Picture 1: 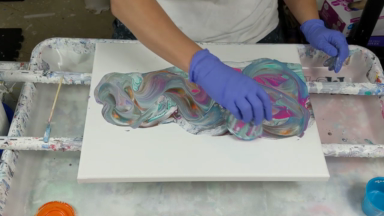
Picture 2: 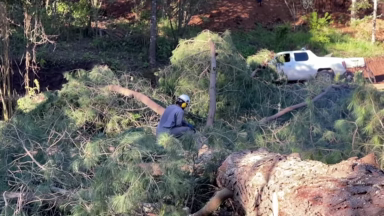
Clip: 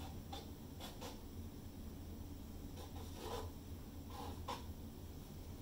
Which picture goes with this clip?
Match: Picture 1